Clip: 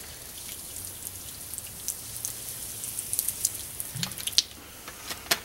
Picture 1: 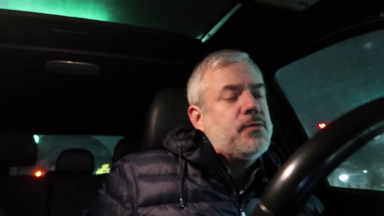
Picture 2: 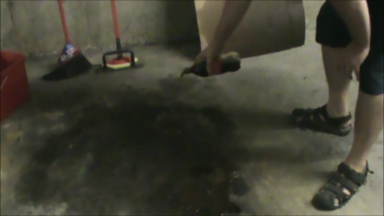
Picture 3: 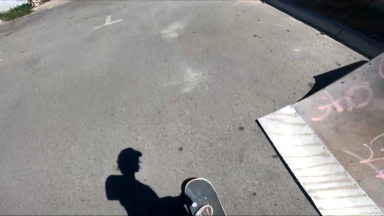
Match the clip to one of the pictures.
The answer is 2